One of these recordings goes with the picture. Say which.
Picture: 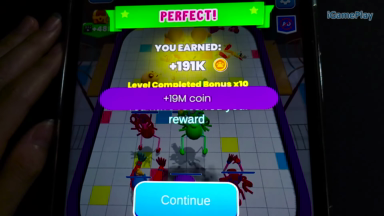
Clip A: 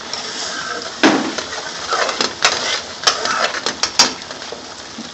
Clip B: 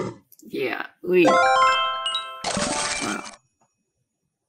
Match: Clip B